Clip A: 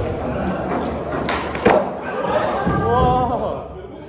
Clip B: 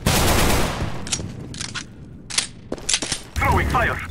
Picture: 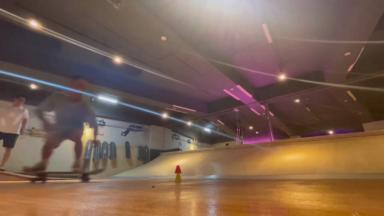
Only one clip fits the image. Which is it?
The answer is A